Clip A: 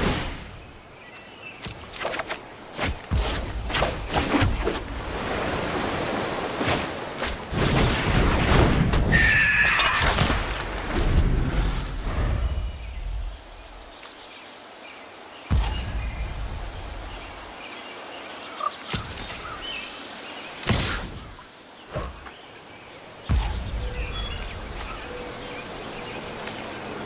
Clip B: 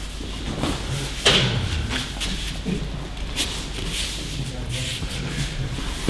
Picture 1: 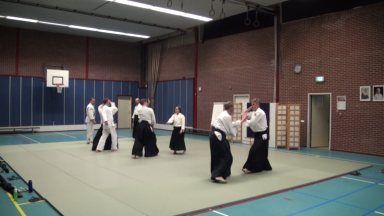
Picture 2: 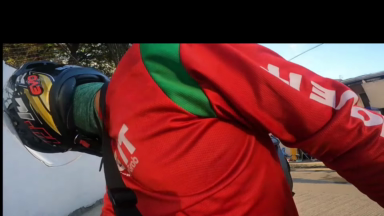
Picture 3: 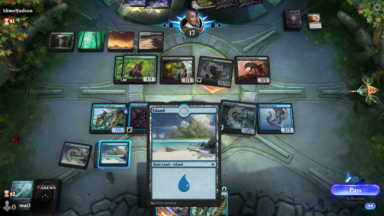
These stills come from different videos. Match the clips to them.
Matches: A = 3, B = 1